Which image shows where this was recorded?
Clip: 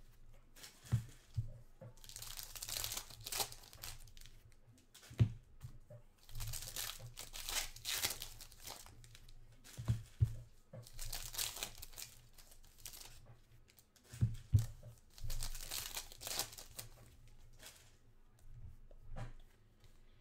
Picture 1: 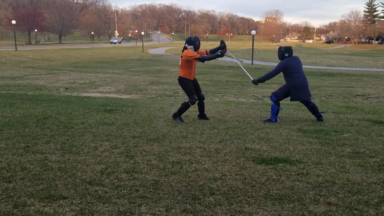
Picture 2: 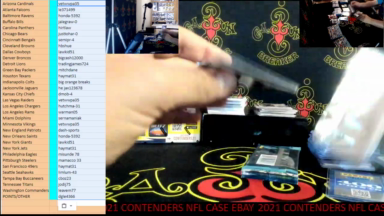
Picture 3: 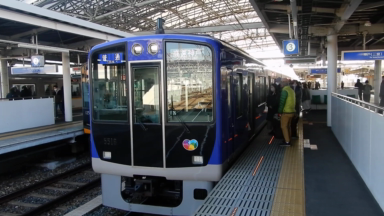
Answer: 2